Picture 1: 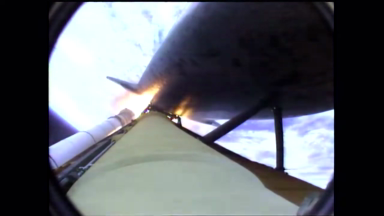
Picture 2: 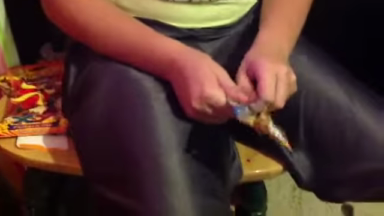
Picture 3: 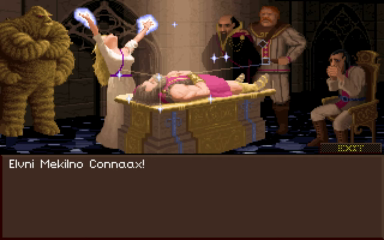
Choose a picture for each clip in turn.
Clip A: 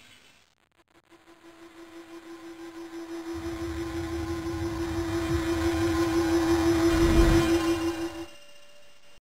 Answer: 3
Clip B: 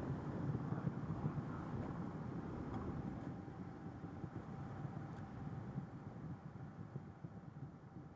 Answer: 1